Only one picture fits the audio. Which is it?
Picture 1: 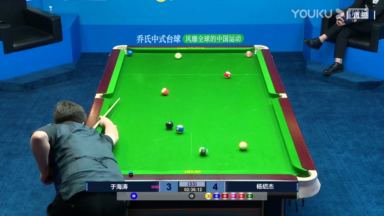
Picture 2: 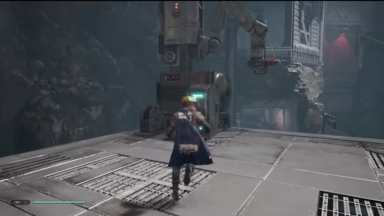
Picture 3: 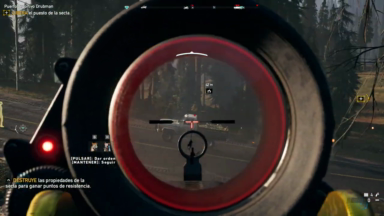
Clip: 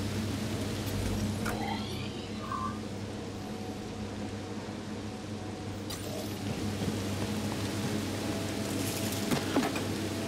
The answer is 2